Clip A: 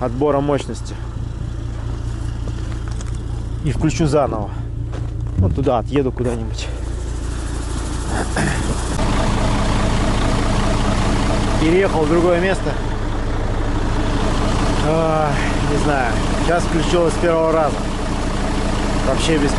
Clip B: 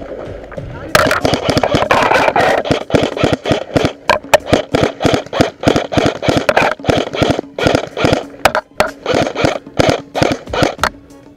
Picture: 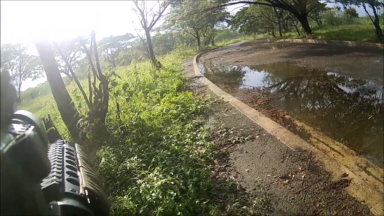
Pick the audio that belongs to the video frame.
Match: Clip B